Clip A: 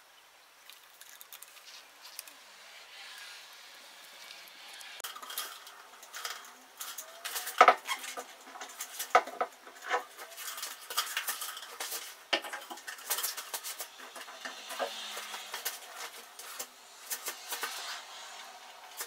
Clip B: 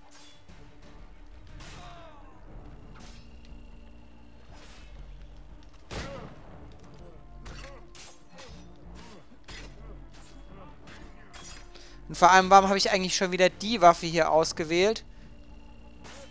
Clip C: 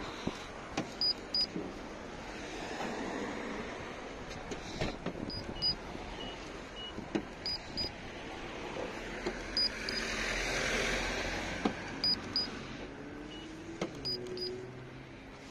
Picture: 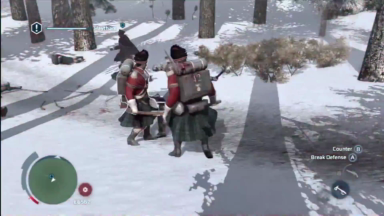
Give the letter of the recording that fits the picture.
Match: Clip B